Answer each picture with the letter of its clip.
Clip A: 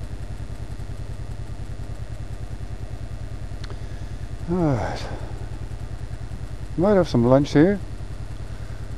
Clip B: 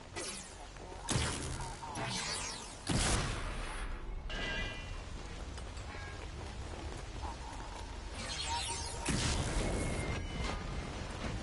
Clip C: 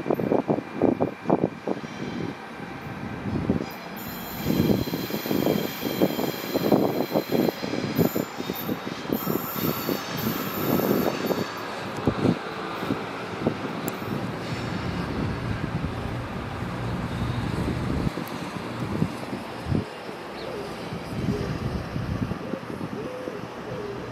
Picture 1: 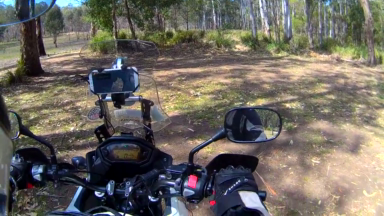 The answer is A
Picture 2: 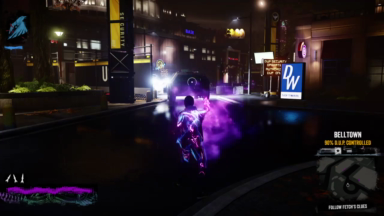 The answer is B